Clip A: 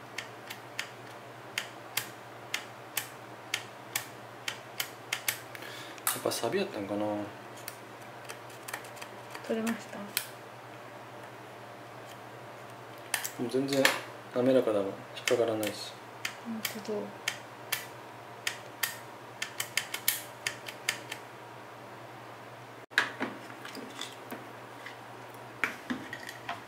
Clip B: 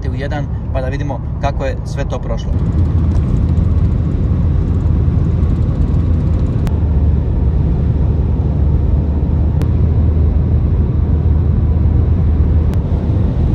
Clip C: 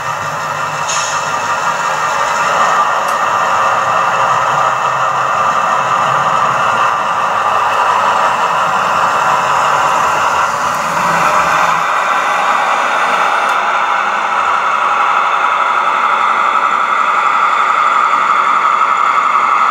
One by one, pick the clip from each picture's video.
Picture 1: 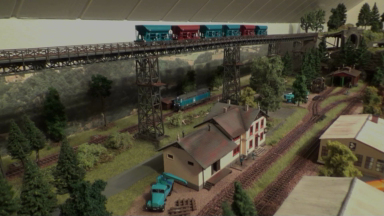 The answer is C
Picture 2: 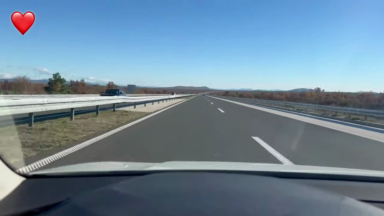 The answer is B